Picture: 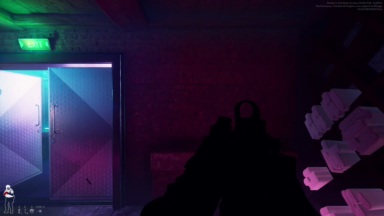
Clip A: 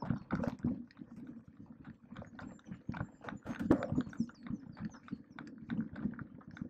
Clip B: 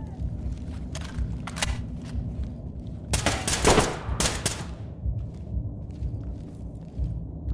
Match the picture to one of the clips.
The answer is B